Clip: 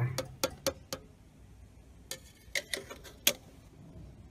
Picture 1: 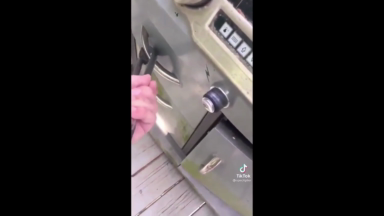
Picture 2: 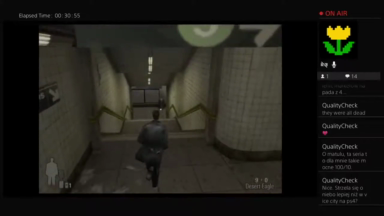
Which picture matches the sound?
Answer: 1